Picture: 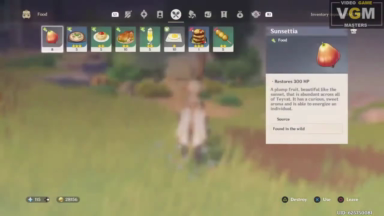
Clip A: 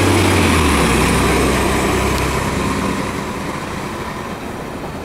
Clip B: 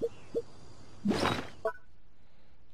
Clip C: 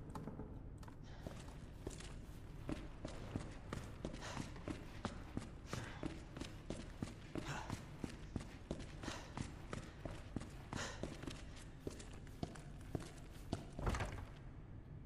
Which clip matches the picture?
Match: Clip B